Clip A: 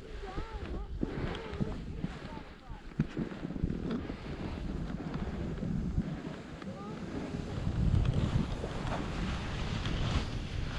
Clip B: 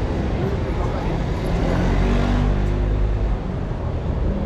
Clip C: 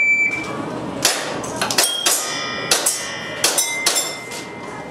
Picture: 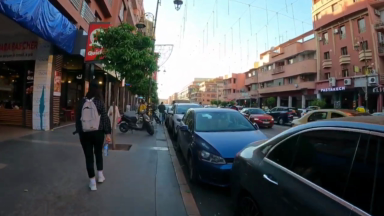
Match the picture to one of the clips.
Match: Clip B